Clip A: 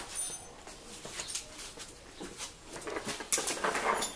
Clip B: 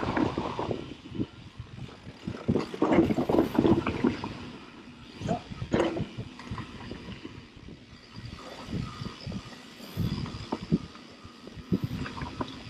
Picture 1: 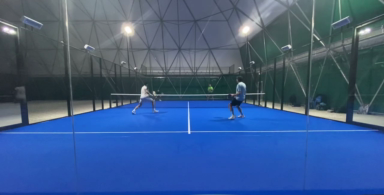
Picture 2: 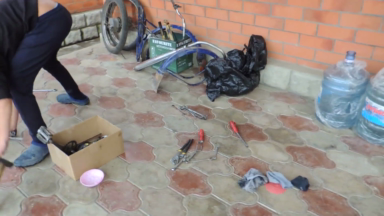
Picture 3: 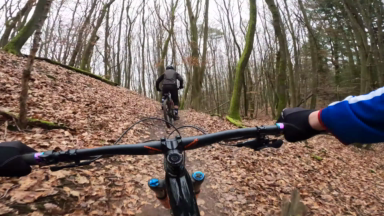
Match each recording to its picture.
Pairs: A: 2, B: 3